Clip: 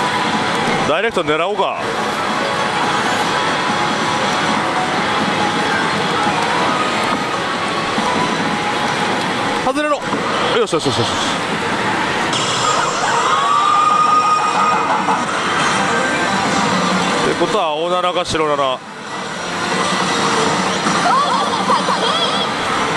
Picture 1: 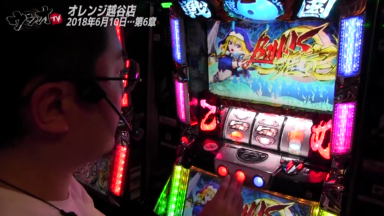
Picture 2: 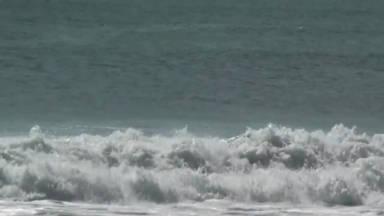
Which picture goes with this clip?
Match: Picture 1